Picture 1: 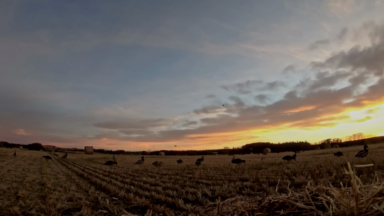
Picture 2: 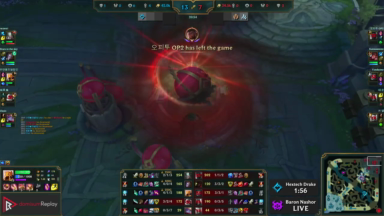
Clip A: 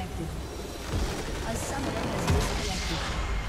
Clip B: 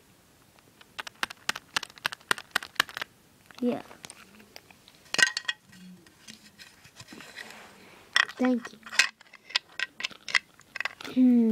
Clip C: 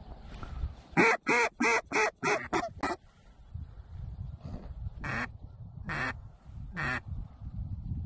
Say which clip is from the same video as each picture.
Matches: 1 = C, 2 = A